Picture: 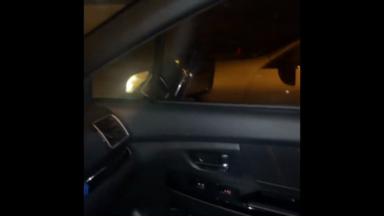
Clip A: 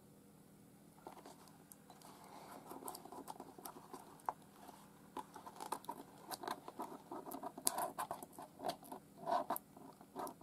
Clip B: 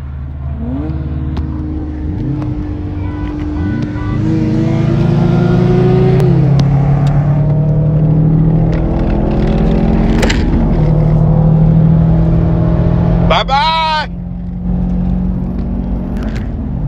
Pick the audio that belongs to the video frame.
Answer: B